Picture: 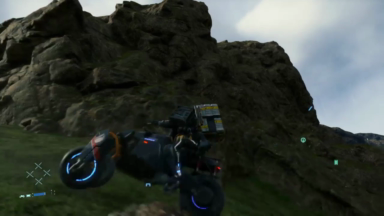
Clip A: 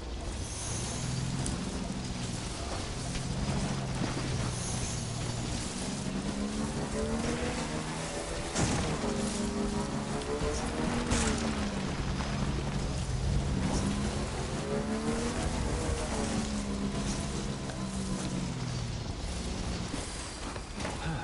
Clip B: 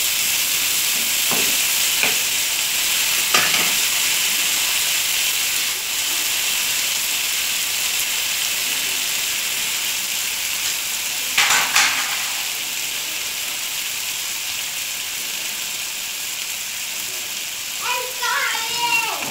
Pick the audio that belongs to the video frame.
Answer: A